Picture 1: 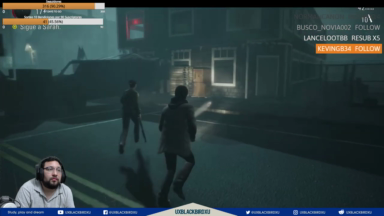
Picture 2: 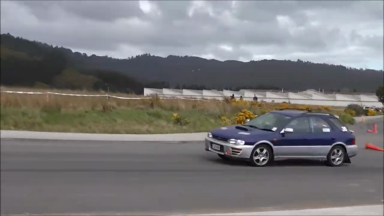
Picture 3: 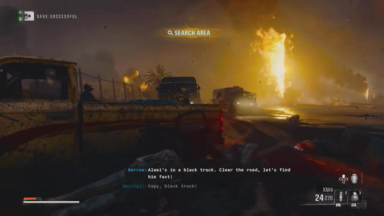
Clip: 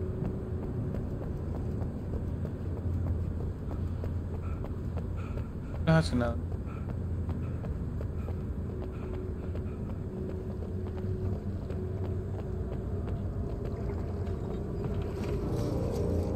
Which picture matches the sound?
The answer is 1